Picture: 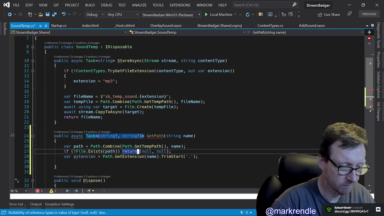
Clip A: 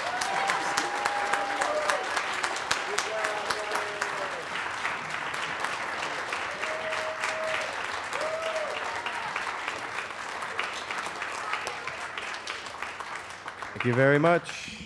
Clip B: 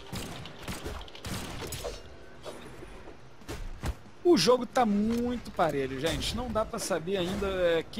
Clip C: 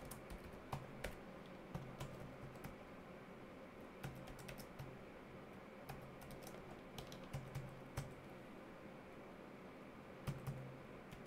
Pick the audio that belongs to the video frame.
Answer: C